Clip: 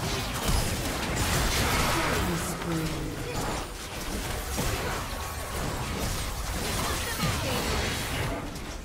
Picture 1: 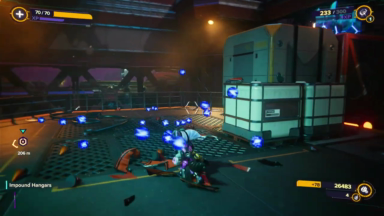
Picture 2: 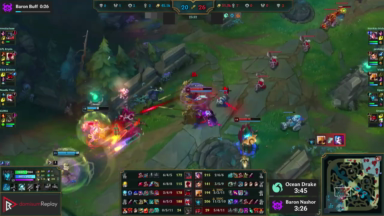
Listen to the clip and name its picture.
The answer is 2